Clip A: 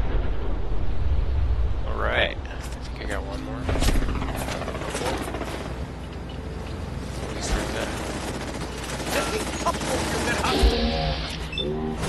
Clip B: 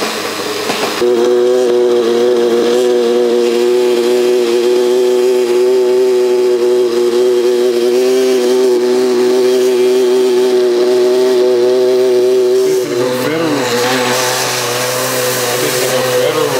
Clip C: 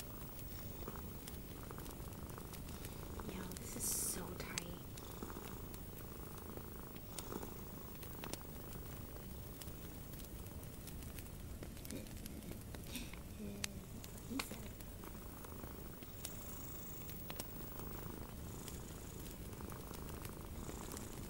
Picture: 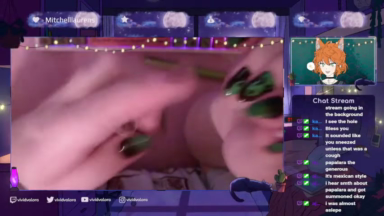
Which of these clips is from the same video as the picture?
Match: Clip C